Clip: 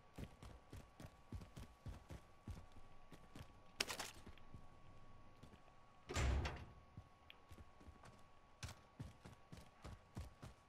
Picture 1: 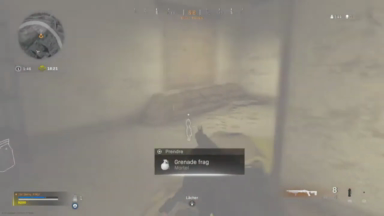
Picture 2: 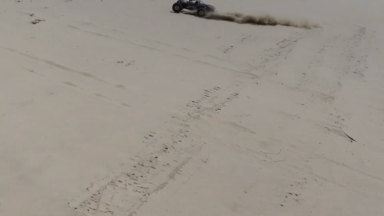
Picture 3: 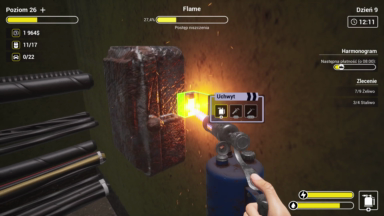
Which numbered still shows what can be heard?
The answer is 1